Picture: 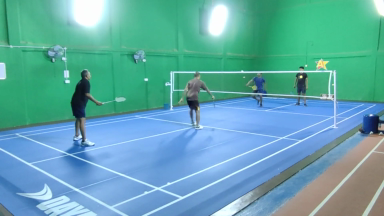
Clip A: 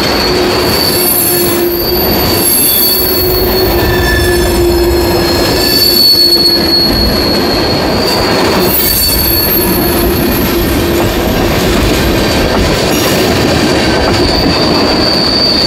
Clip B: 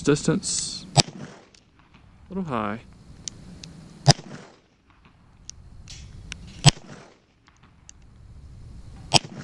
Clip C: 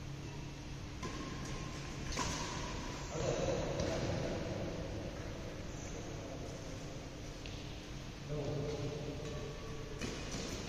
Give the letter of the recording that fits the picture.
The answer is C